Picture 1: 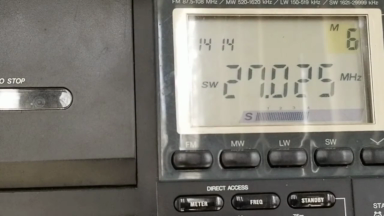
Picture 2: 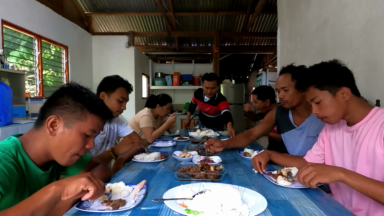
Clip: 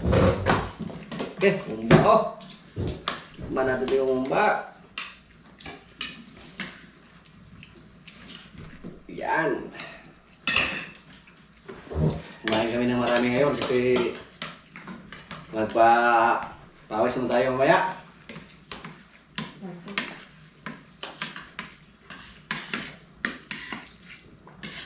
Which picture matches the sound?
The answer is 2